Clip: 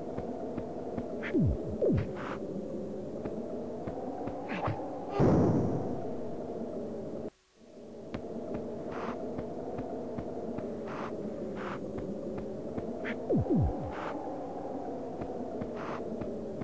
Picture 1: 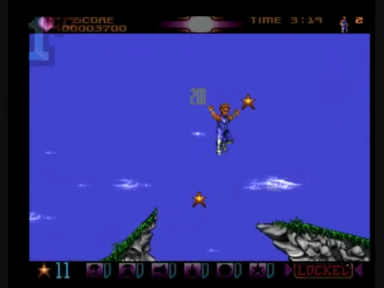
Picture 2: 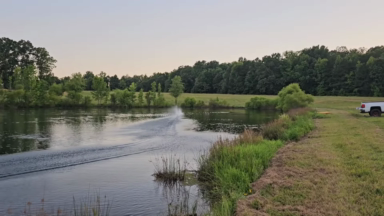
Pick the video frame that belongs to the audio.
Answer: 1